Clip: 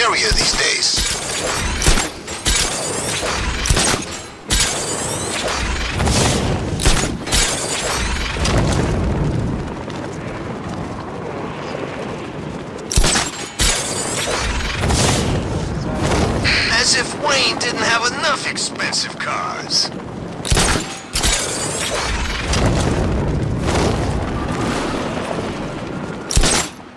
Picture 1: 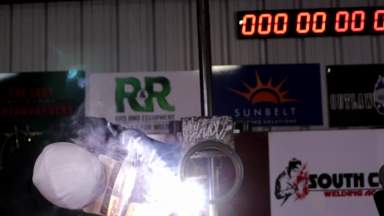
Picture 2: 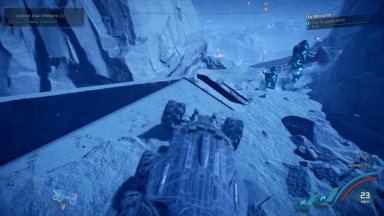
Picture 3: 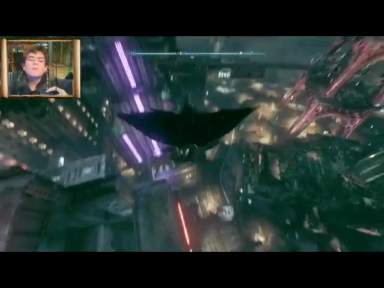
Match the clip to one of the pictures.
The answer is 3